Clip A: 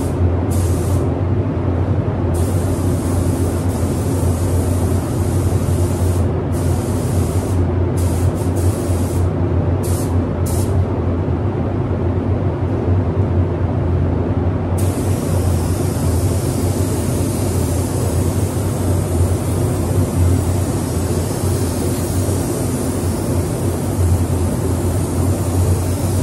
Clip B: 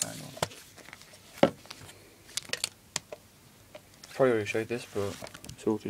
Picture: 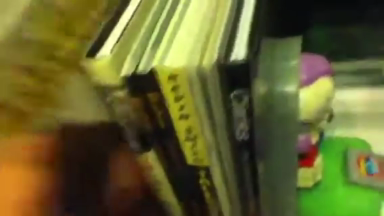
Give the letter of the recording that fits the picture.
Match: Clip B